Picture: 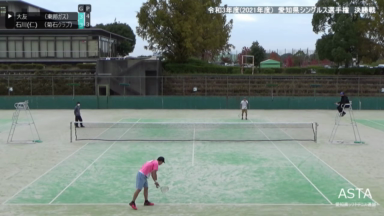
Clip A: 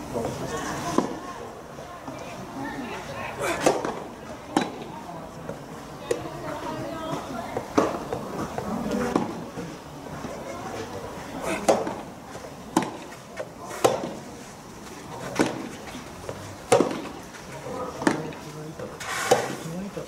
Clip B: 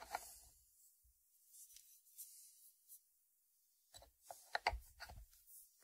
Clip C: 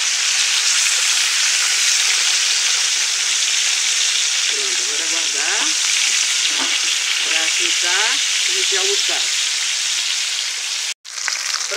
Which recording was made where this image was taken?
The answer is A